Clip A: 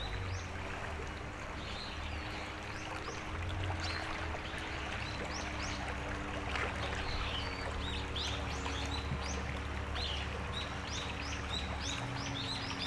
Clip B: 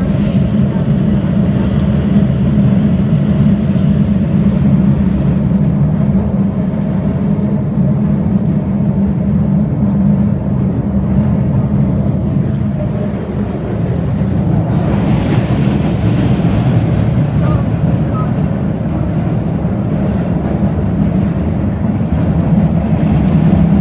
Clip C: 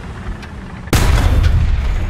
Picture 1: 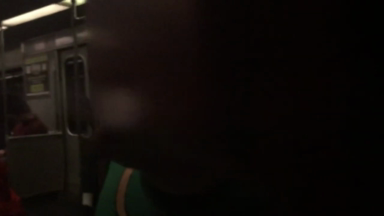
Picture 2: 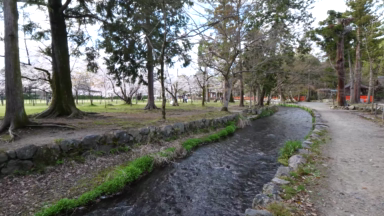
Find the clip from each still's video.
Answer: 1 B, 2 A